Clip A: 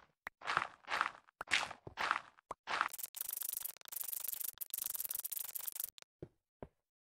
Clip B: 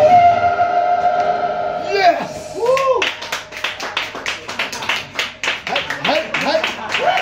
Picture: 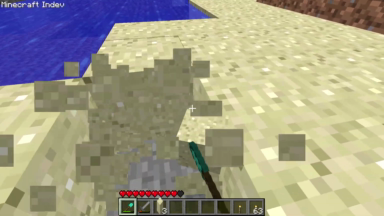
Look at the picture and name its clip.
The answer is A